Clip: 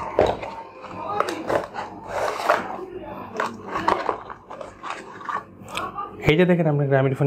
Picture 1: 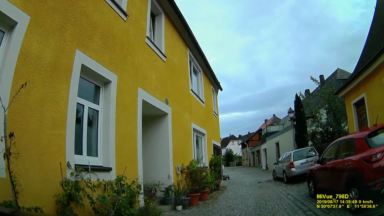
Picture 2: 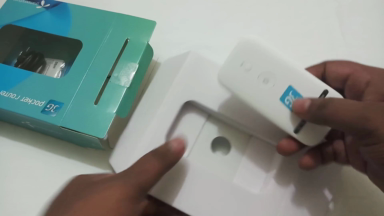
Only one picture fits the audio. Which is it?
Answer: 2